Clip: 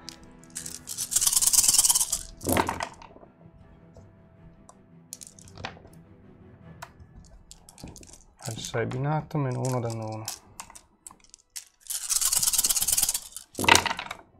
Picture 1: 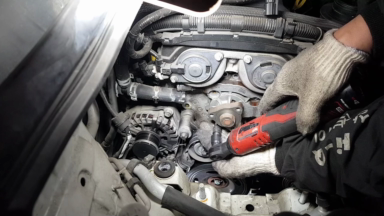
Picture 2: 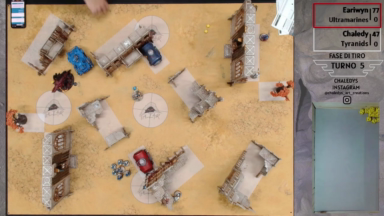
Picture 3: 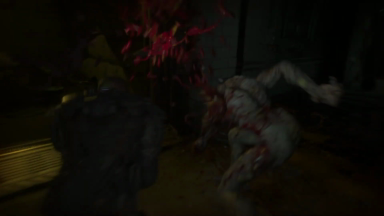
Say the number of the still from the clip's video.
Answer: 2